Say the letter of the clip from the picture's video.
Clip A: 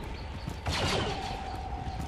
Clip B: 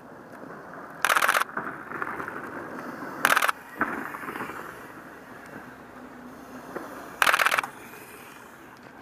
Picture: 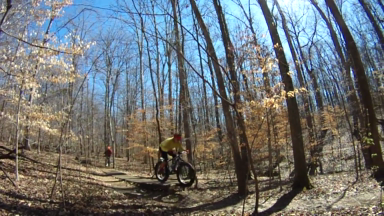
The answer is B